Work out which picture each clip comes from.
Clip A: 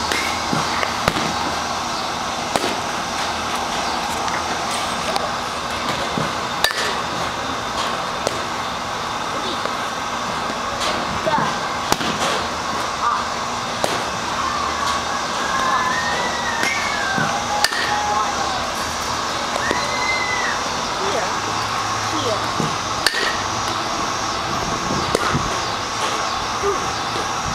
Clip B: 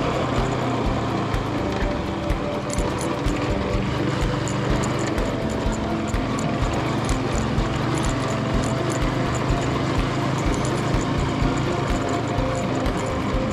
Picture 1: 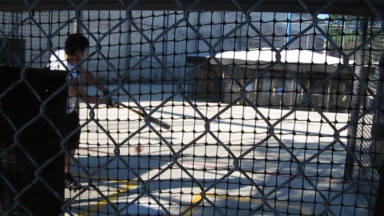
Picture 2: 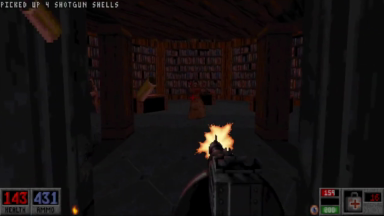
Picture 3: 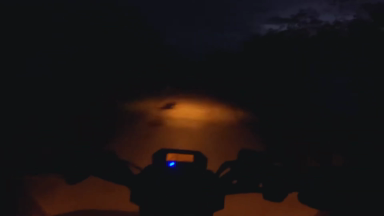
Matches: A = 1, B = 3